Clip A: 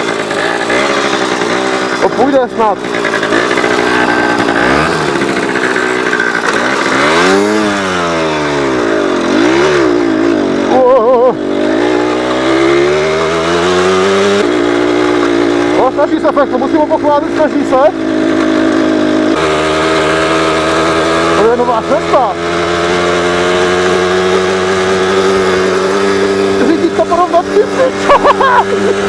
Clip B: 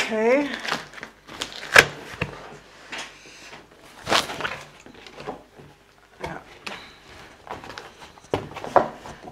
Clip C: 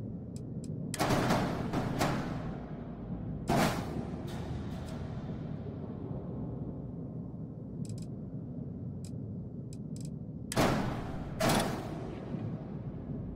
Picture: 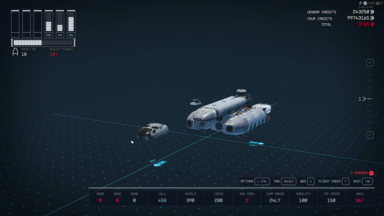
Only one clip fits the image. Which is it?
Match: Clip C